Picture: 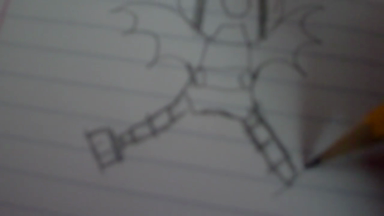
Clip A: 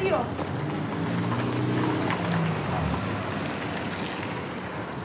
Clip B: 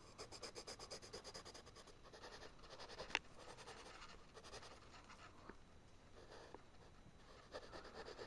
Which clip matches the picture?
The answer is B